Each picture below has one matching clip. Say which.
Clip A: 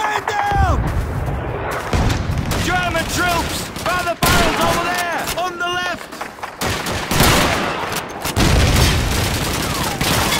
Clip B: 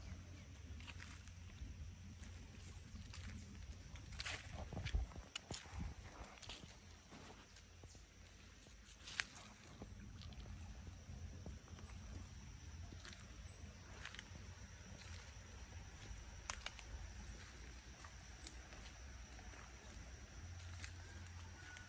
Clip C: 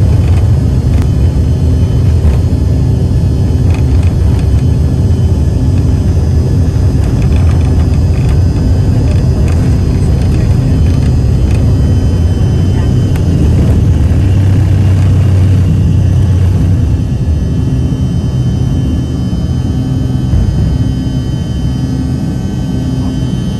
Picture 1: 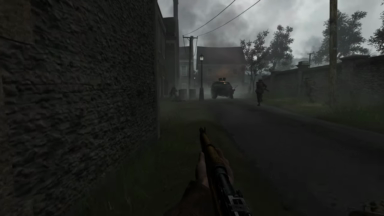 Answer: A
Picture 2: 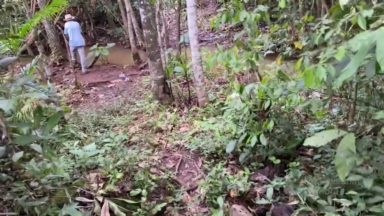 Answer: B